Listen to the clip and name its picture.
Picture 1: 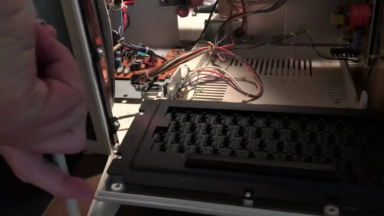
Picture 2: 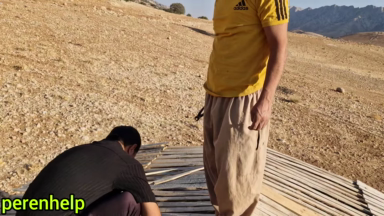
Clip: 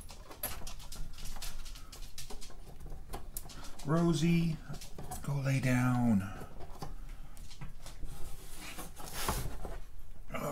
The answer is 1